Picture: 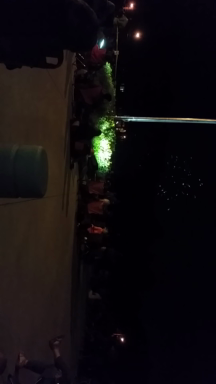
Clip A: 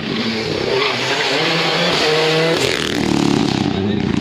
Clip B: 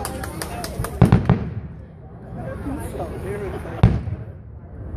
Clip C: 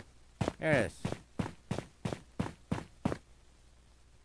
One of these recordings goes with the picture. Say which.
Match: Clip B